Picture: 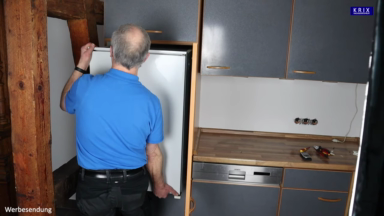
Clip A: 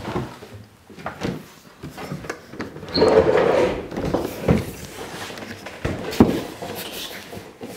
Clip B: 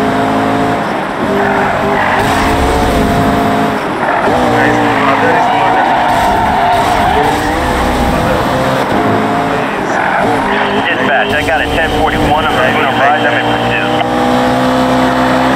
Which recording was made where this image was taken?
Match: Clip A